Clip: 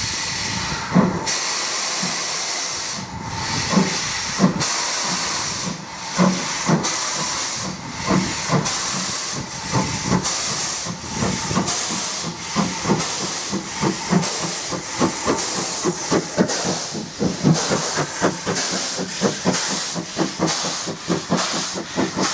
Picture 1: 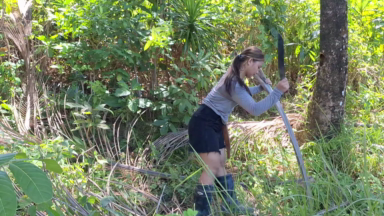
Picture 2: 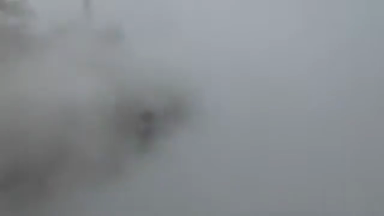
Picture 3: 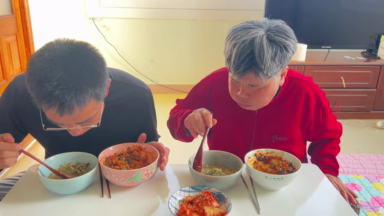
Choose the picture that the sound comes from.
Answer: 2